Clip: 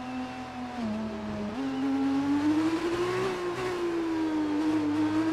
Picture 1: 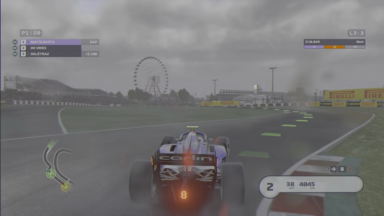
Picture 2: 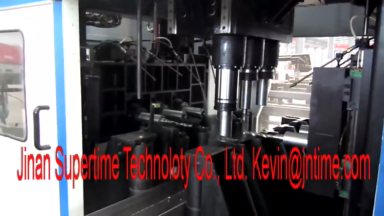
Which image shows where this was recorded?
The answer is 1